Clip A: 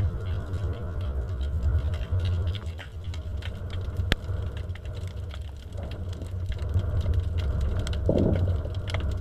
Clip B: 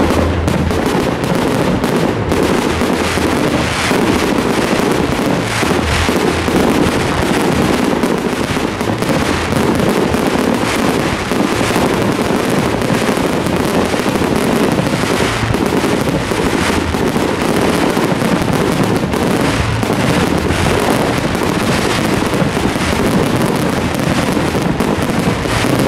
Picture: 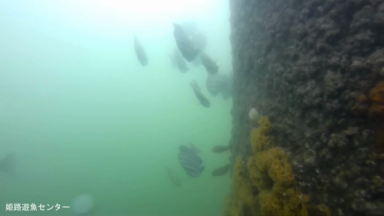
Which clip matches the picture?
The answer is A